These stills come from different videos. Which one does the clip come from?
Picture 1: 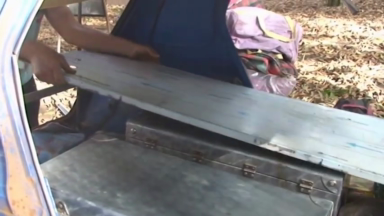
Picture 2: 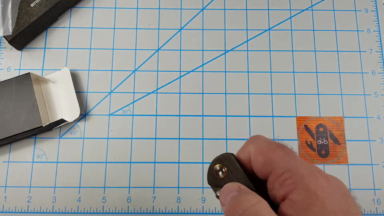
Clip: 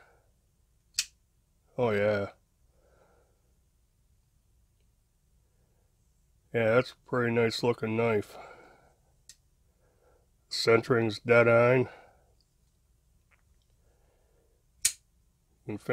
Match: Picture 2